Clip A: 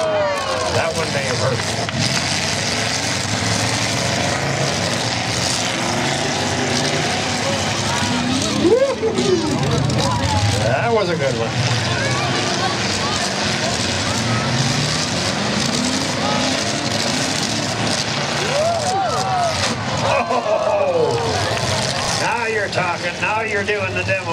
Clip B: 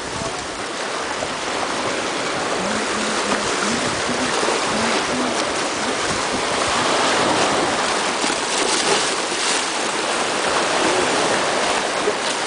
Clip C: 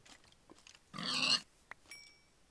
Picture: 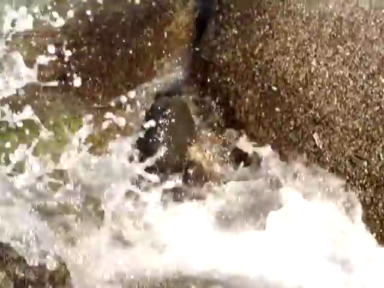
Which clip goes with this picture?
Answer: B